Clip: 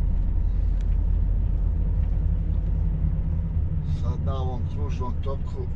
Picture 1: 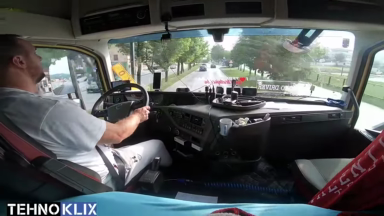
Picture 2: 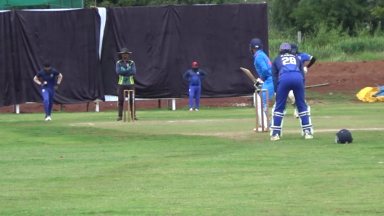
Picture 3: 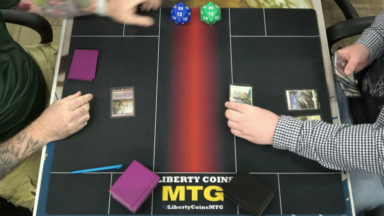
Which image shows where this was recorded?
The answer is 1